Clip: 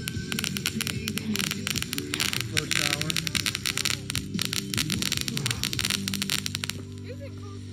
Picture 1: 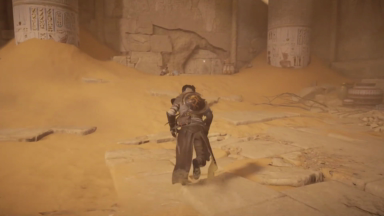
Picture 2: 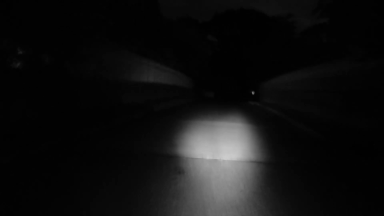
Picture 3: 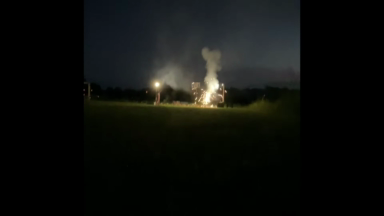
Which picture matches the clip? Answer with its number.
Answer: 3